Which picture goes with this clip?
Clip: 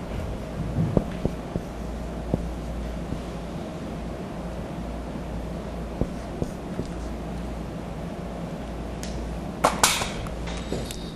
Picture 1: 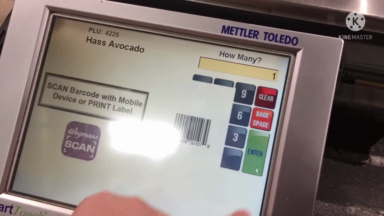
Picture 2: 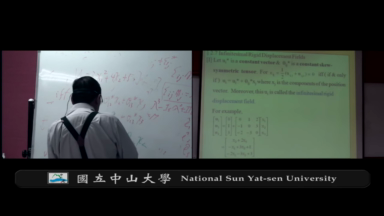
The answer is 2